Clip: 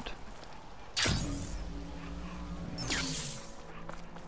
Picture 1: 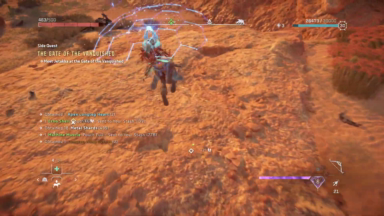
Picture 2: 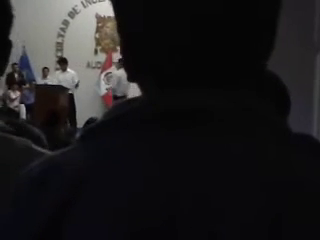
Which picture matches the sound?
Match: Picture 1